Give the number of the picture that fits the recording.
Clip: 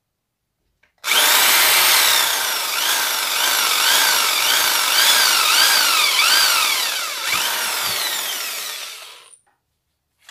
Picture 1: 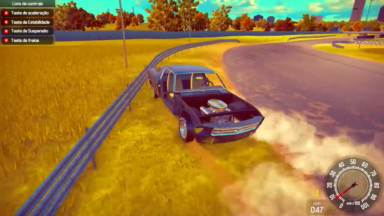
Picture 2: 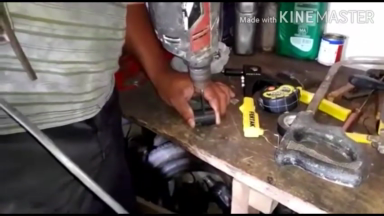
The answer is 2